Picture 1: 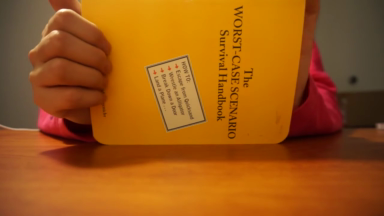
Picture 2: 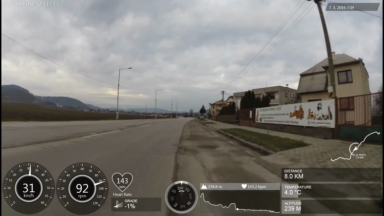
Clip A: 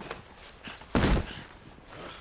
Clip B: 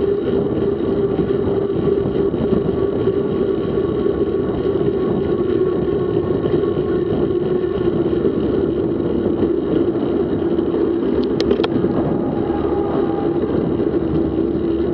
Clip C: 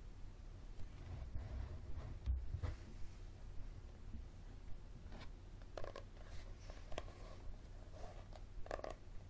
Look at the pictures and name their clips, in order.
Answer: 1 C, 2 B